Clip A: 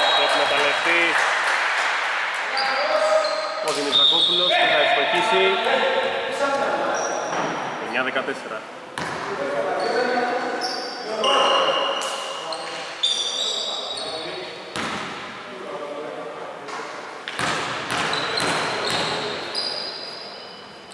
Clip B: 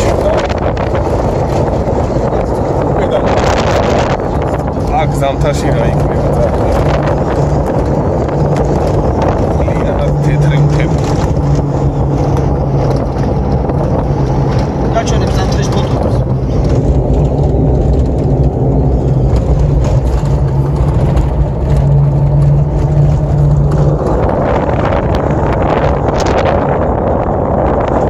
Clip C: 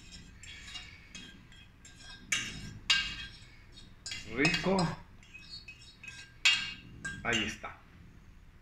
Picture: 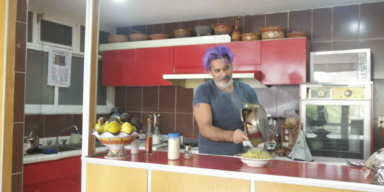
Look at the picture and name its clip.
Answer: C